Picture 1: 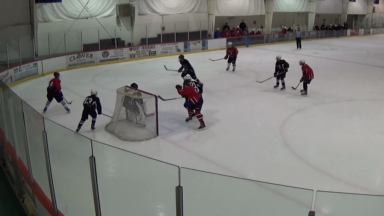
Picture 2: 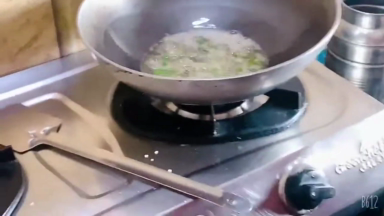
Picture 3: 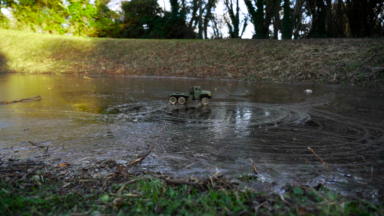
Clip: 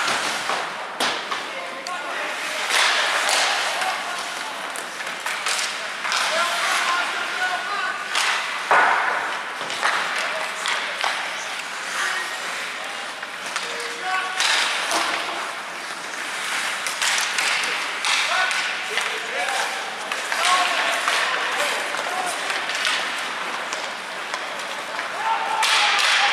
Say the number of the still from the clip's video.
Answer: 1